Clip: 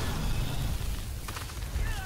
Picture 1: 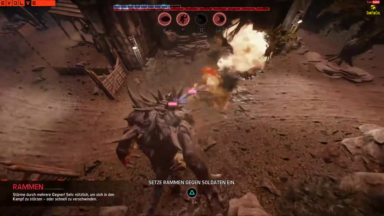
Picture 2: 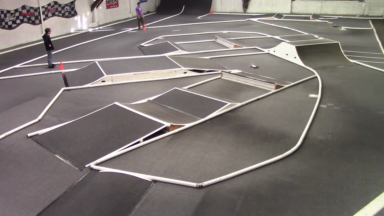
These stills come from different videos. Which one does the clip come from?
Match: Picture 1